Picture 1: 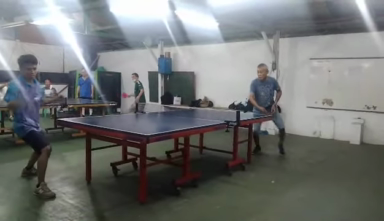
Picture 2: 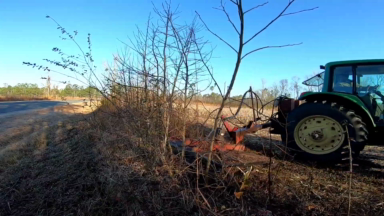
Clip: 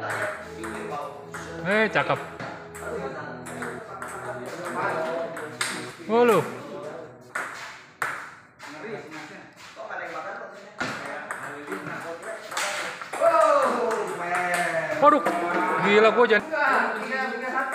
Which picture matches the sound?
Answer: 1